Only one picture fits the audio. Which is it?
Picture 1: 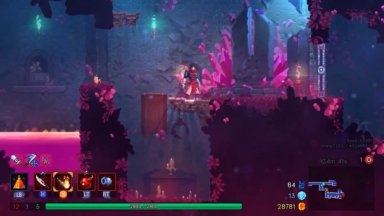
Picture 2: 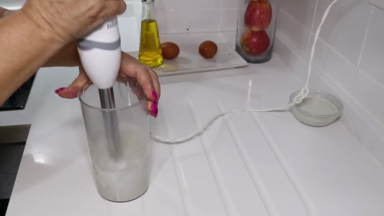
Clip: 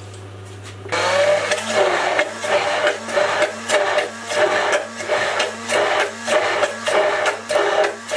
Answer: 2